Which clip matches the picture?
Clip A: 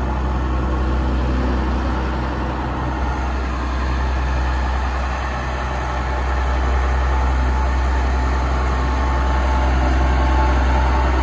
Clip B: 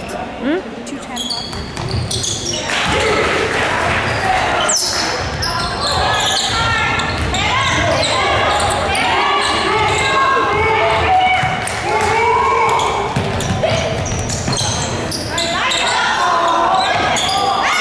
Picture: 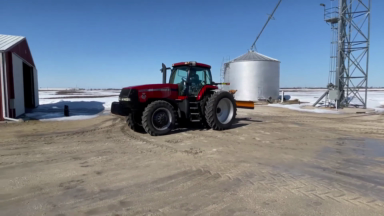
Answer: A